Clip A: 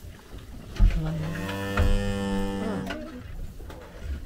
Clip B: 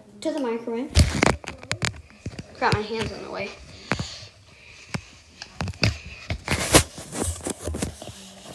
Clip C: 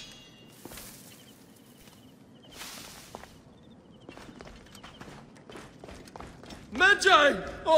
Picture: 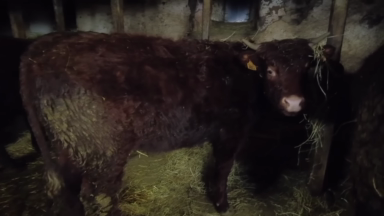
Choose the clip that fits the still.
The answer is A